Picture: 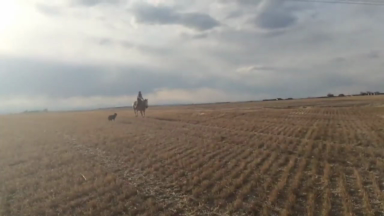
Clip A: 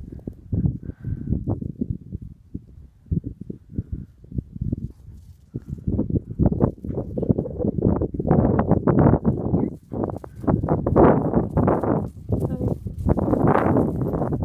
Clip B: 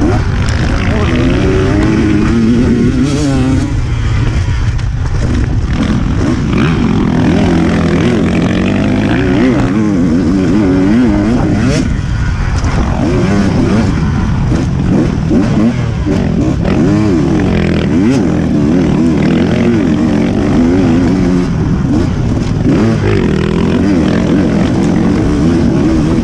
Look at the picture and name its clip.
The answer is A